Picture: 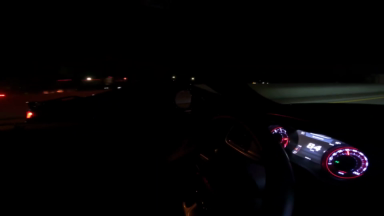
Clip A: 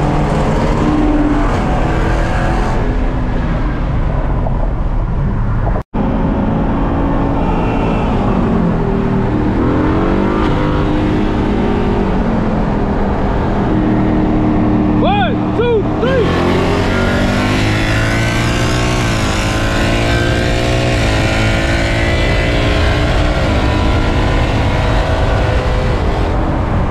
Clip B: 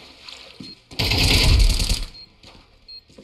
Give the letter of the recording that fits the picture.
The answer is A